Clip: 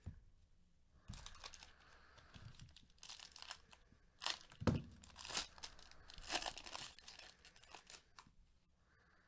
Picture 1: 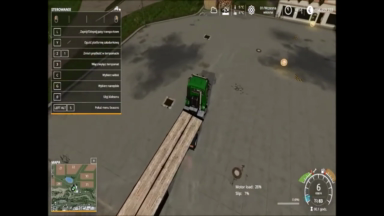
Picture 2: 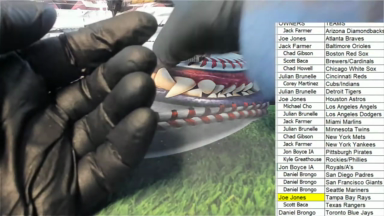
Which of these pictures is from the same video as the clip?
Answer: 2